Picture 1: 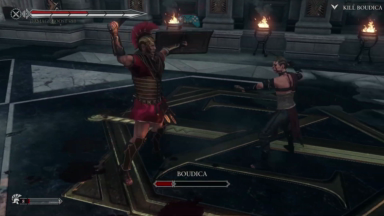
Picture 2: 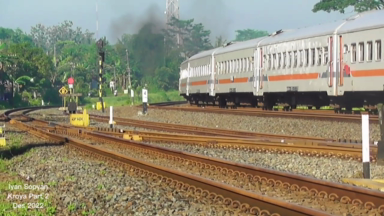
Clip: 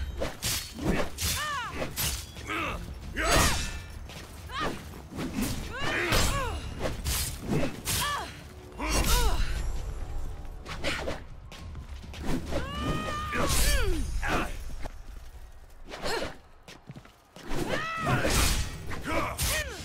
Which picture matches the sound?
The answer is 1